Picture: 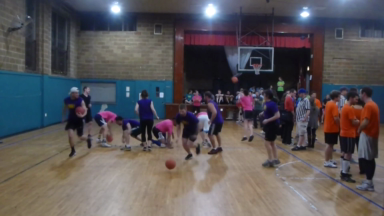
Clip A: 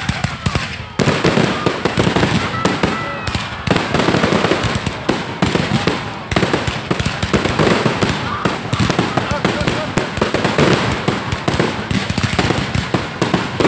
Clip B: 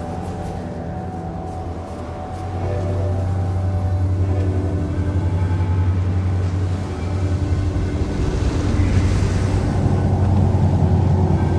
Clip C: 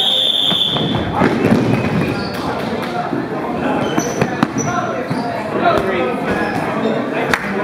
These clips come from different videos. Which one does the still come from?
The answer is C